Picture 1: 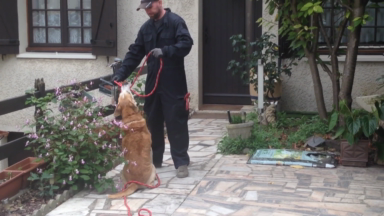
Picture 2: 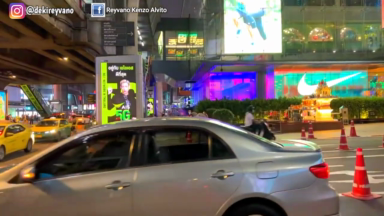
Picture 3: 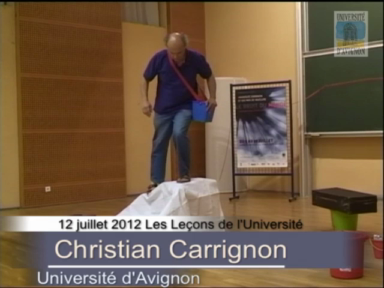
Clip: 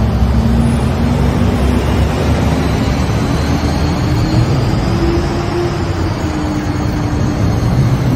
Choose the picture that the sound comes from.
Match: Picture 2